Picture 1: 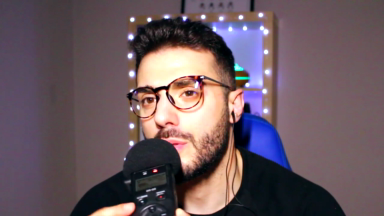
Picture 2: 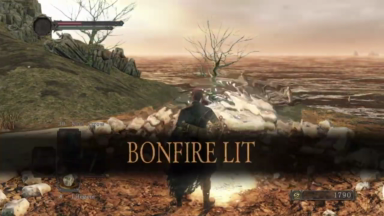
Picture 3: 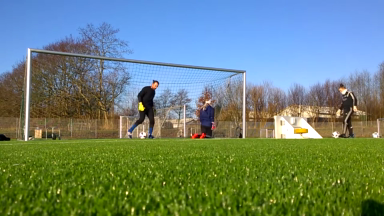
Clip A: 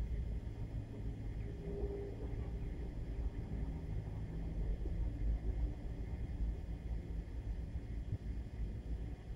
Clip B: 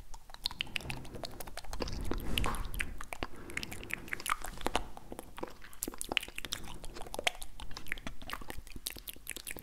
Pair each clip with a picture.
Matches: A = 3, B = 1